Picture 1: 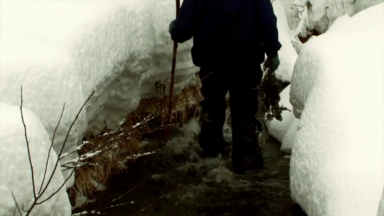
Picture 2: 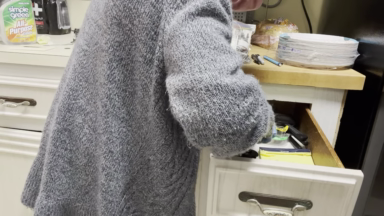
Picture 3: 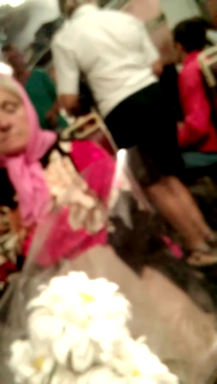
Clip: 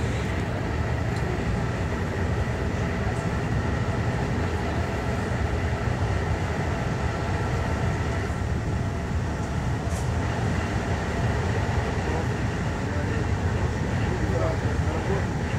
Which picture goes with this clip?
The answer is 3